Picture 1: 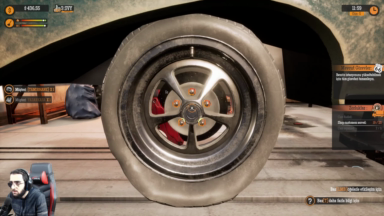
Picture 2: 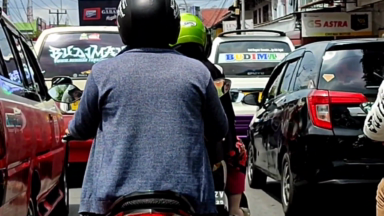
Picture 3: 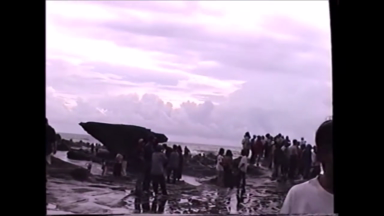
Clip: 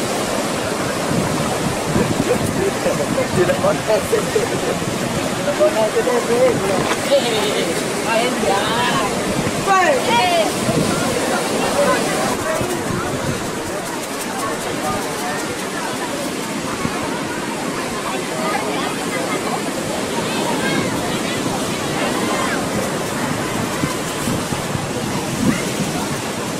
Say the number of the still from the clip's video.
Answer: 3